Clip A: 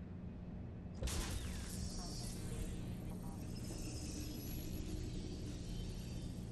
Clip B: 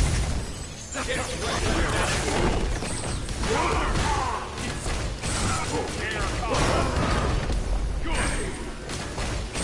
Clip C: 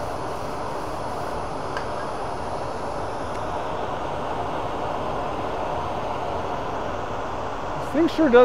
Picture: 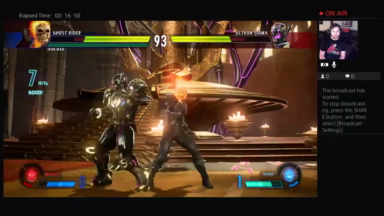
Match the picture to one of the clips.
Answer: B